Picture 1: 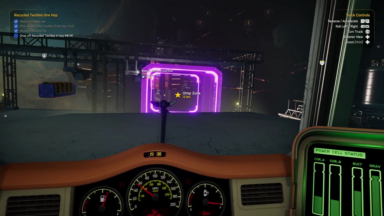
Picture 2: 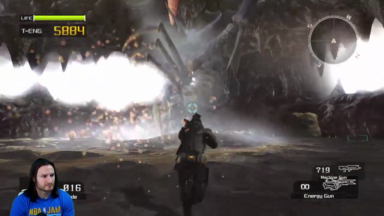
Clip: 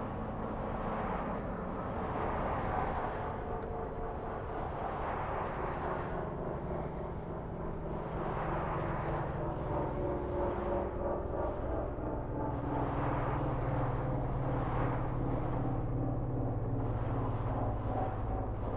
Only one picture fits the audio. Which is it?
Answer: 1